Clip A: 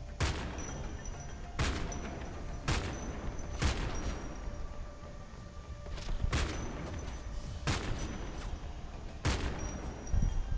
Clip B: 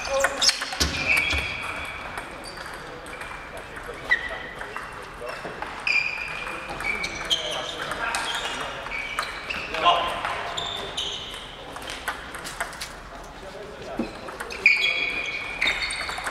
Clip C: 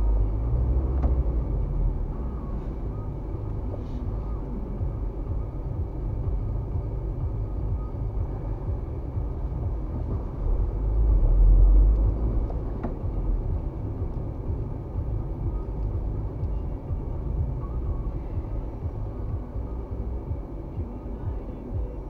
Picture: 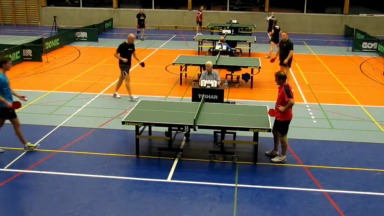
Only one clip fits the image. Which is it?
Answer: B